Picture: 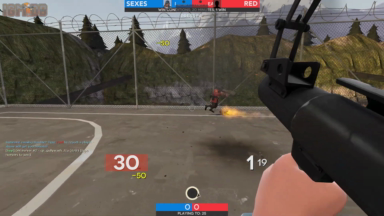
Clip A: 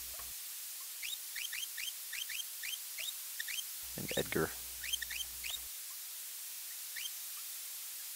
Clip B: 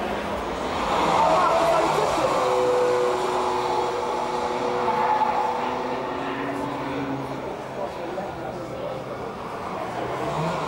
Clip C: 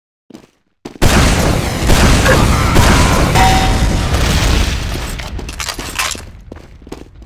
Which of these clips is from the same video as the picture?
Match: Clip C